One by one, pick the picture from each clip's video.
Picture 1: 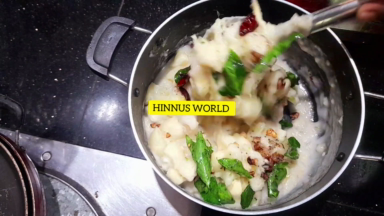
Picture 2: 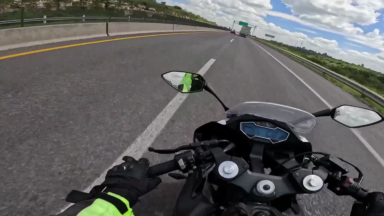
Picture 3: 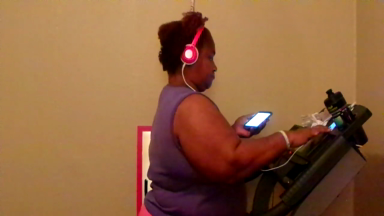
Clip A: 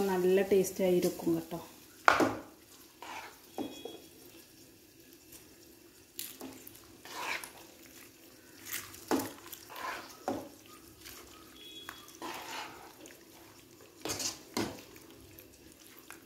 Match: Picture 1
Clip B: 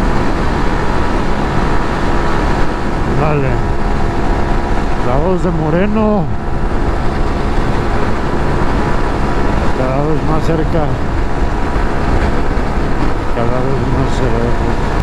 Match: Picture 2